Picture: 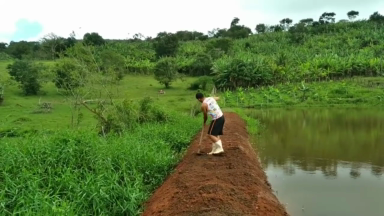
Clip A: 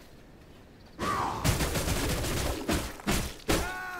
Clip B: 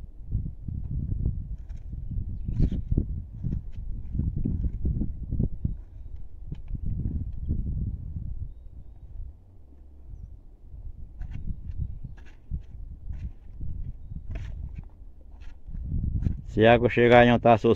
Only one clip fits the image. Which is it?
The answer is B